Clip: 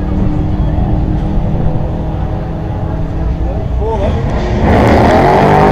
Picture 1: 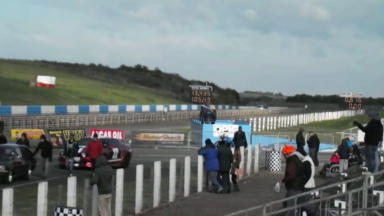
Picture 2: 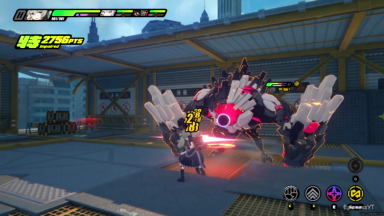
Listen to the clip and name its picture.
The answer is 1